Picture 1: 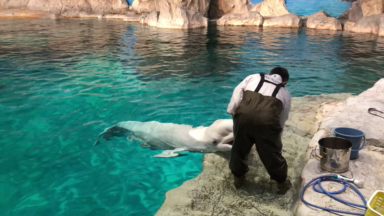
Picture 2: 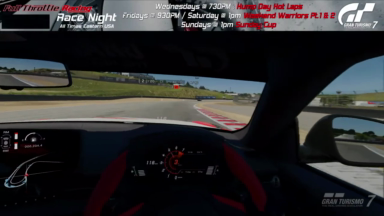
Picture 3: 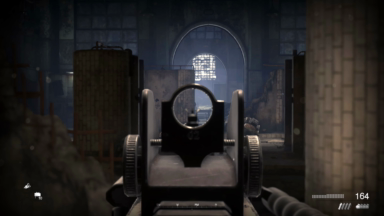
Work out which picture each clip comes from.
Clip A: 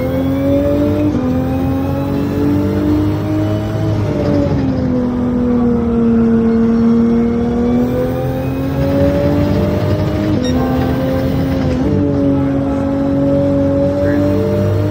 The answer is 2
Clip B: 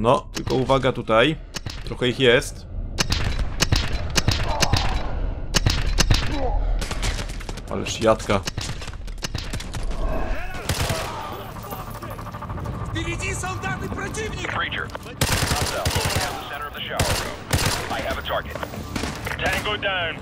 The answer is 3